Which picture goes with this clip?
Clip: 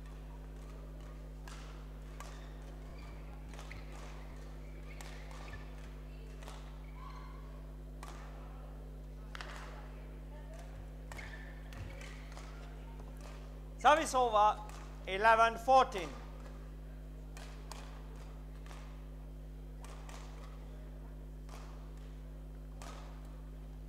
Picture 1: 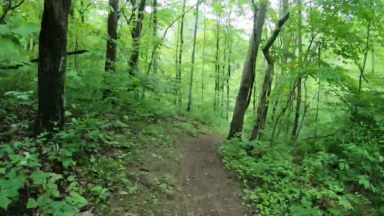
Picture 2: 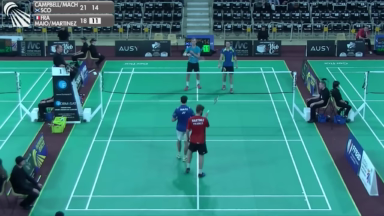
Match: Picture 2